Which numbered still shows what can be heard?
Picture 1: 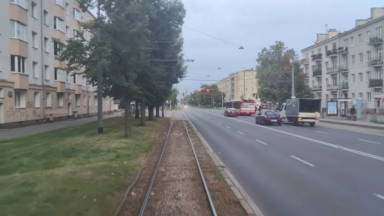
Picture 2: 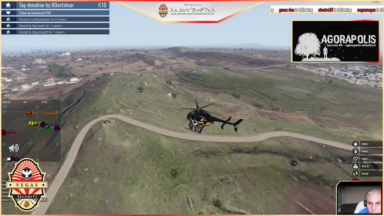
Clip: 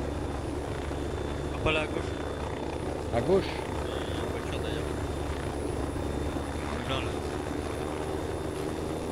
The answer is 2